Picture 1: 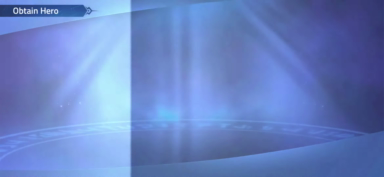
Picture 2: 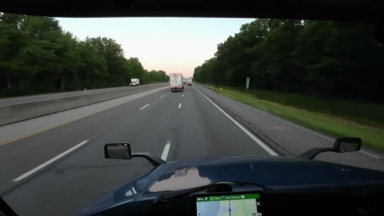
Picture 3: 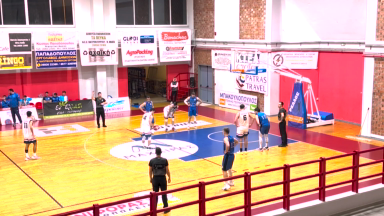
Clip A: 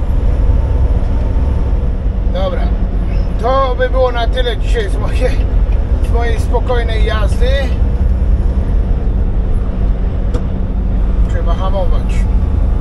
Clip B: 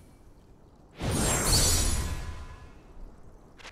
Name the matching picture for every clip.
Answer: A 2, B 1